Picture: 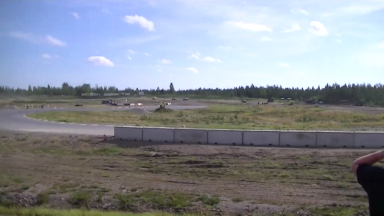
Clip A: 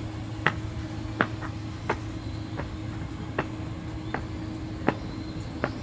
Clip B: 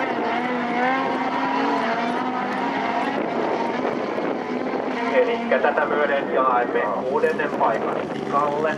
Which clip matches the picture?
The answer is B